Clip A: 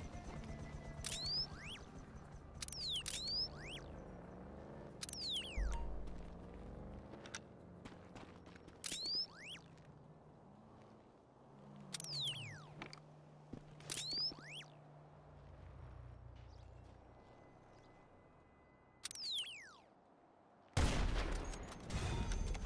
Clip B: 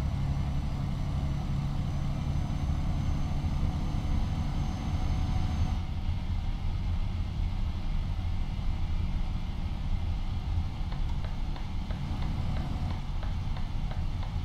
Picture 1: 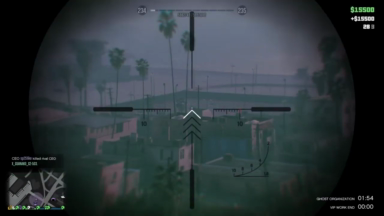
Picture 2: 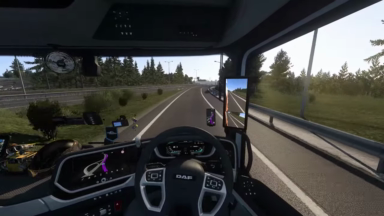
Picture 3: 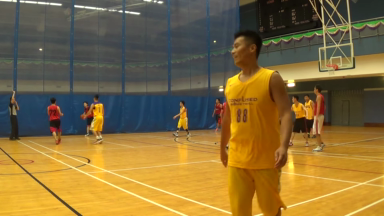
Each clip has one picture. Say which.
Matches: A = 1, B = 2